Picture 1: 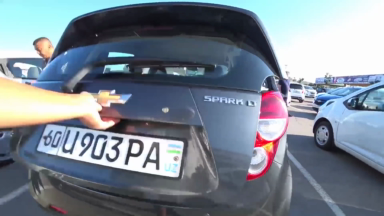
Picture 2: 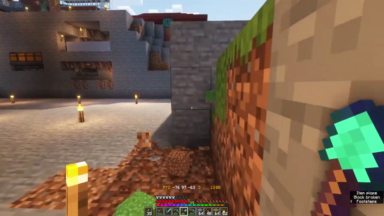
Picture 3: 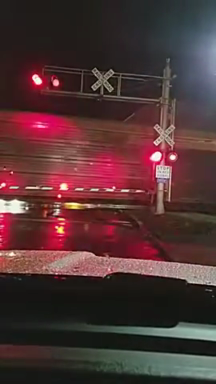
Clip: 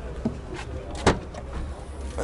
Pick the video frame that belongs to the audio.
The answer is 1